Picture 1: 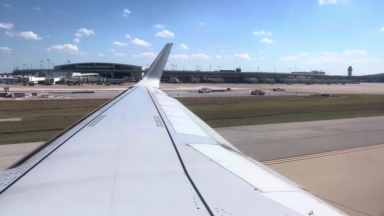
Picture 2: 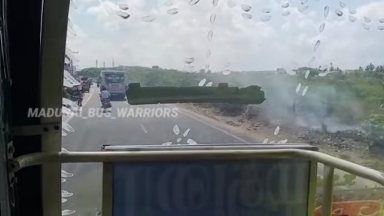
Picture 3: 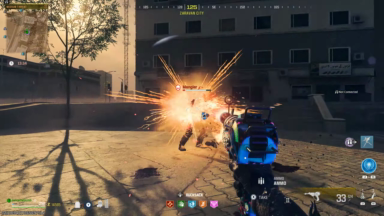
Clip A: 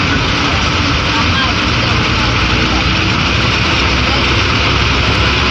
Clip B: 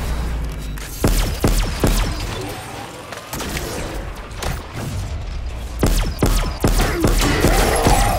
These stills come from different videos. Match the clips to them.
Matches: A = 2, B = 3